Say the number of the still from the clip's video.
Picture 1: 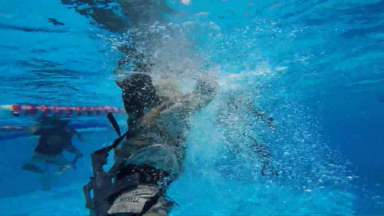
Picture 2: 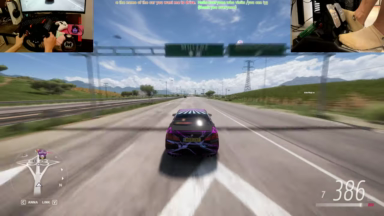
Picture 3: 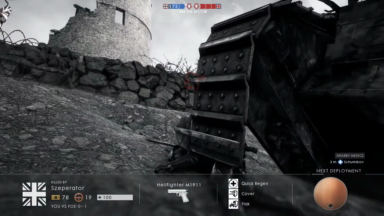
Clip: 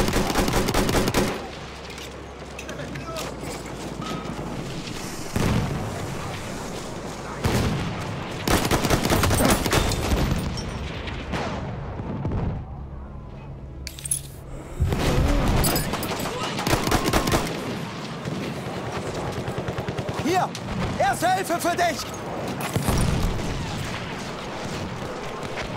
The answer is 3